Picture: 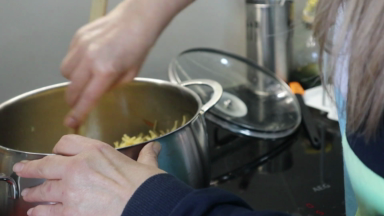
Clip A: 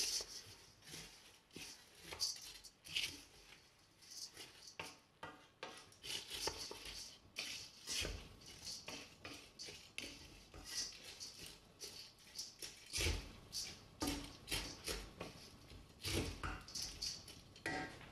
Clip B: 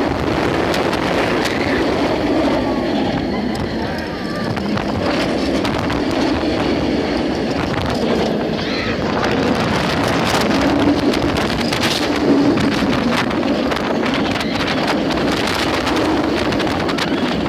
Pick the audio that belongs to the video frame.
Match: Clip A